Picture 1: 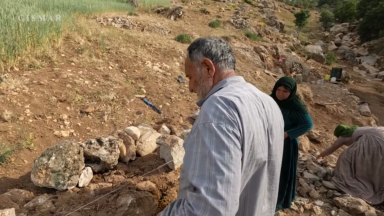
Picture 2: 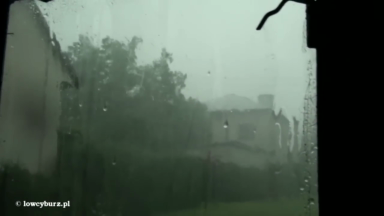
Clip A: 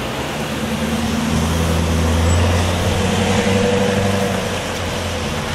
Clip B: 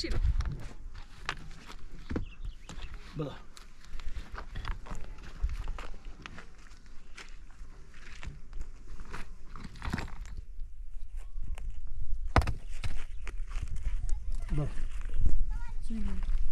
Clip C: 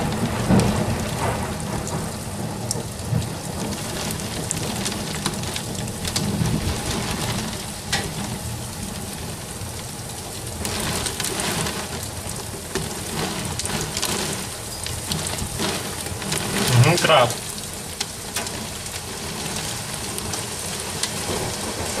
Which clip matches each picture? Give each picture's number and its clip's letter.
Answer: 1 B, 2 C